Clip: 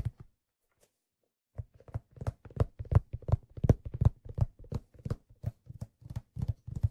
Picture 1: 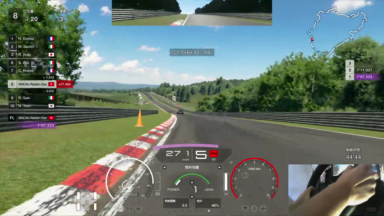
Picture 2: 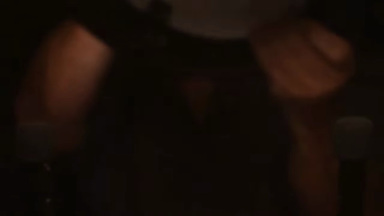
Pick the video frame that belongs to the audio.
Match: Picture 2